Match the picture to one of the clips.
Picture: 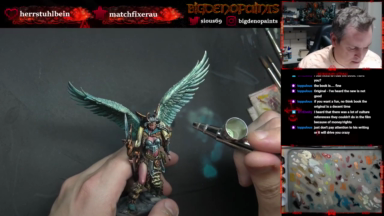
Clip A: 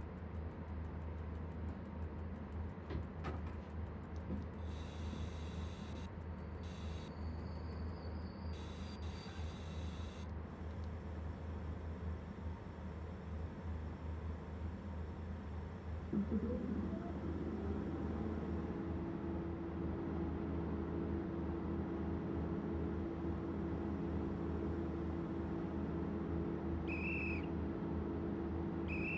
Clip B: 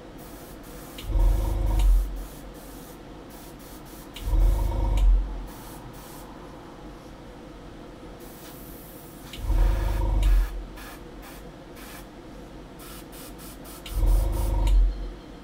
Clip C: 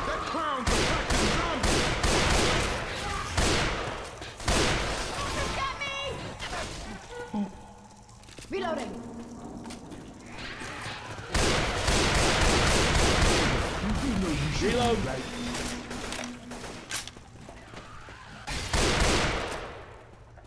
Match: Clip B